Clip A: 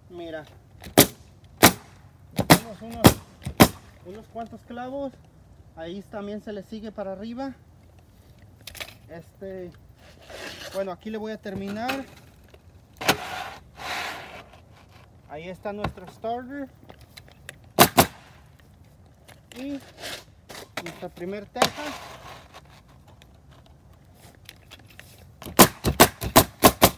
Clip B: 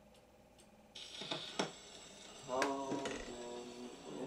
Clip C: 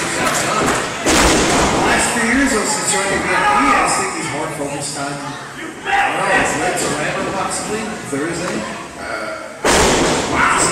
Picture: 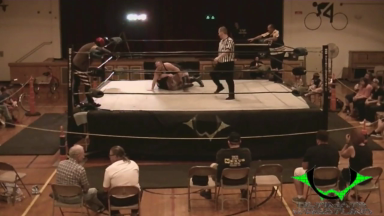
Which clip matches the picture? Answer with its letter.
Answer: C